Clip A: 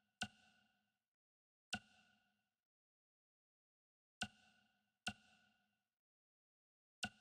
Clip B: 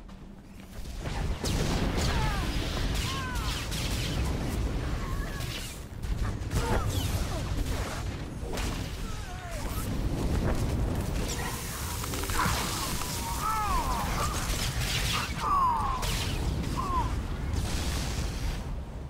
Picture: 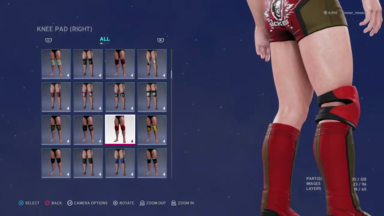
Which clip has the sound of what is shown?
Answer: A